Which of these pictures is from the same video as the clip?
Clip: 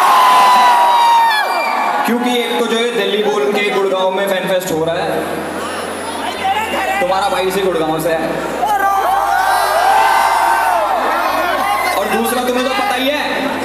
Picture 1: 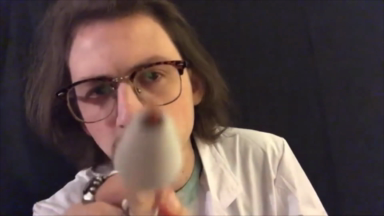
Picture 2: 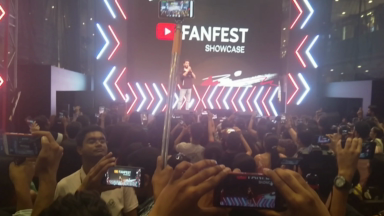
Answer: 2